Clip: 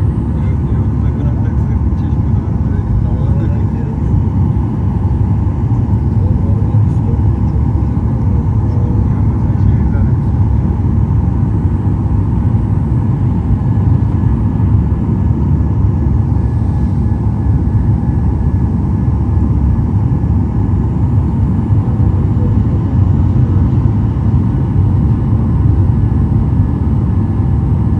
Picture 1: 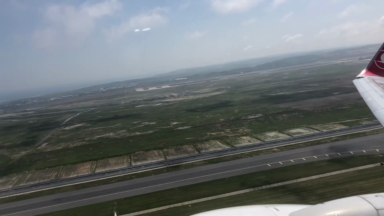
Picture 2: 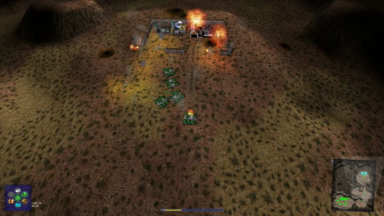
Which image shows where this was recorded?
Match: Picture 1